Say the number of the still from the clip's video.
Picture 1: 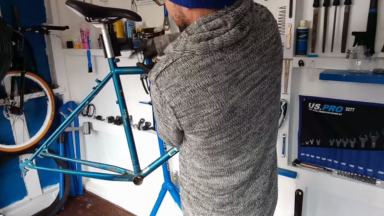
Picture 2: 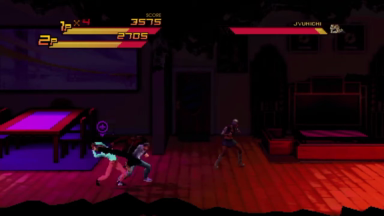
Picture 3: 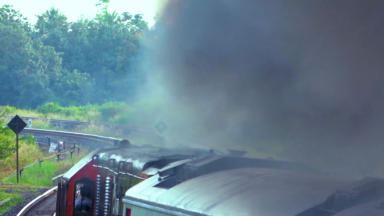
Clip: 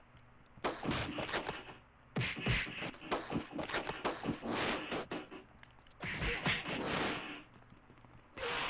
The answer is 2